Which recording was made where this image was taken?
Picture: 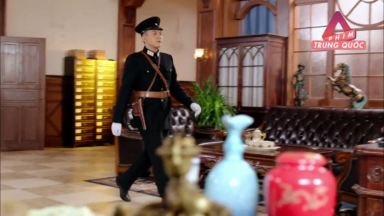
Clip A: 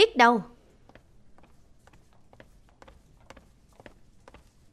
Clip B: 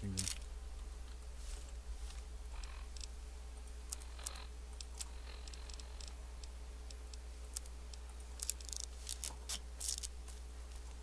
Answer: A